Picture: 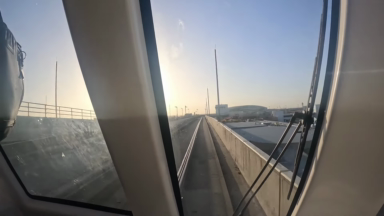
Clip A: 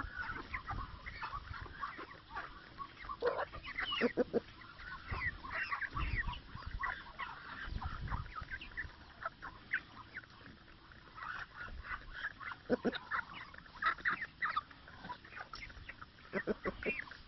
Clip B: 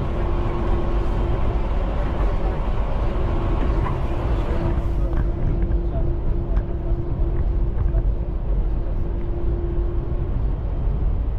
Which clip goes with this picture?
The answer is B